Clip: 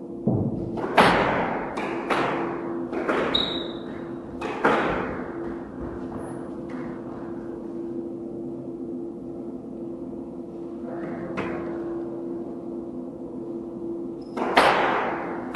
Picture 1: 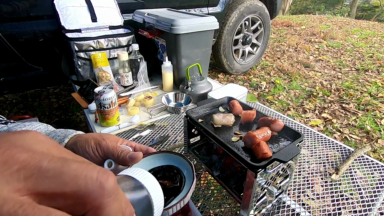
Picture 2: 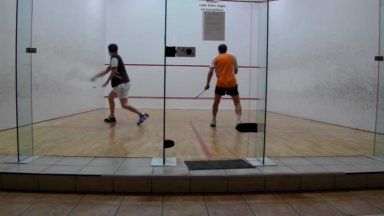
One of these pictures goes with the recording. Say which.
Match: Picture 2